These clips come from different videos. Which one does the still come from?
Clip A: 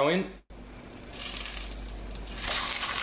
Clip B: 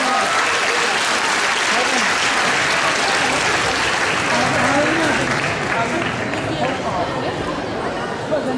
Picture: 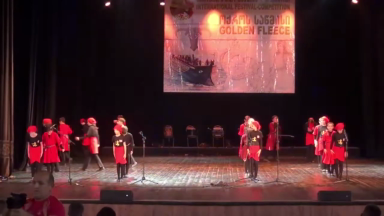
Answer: B